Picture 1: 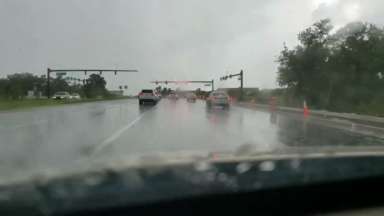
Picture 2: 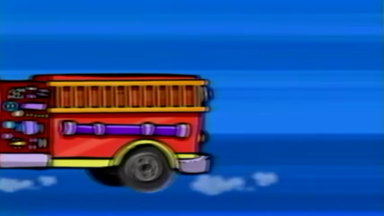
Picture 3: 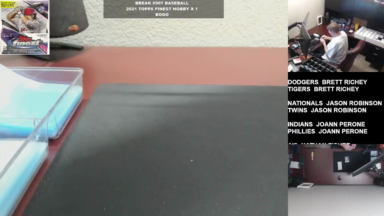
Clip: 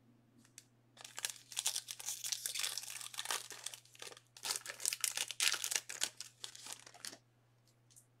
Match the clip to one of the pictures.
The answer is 3